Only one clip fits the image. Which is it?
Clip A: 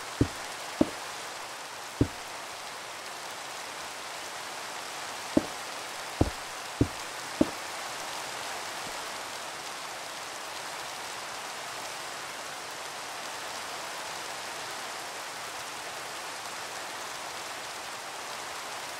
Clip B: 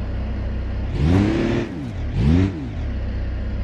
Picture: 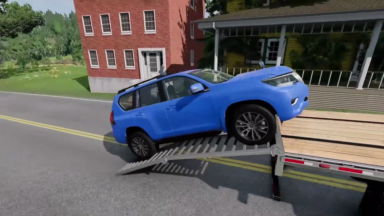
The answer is B